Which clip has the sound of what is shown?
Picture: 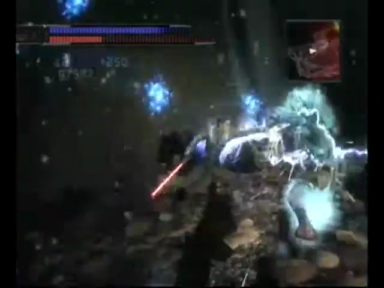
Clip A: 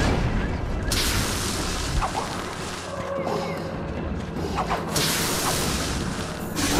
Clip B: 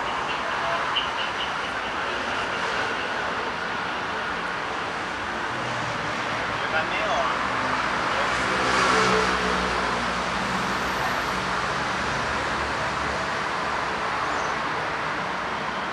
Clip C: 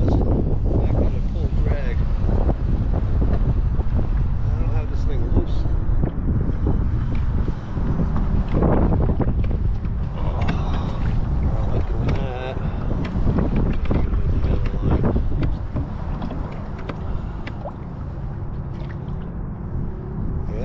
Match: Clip A